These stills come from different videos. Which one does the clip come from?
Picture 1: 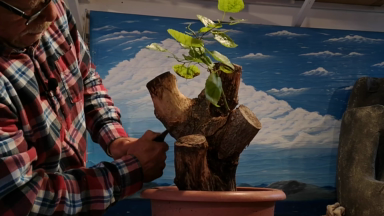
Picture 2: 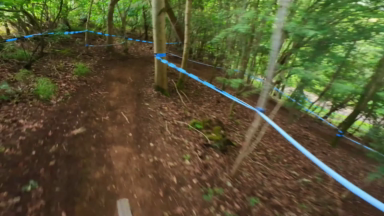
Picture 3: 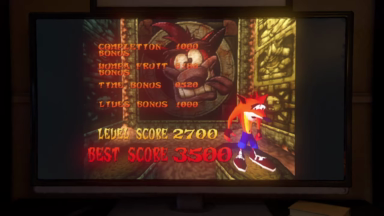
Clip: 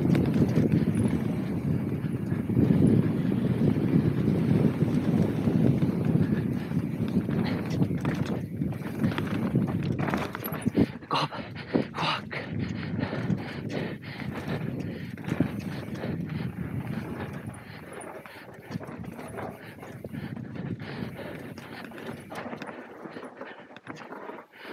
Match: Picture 2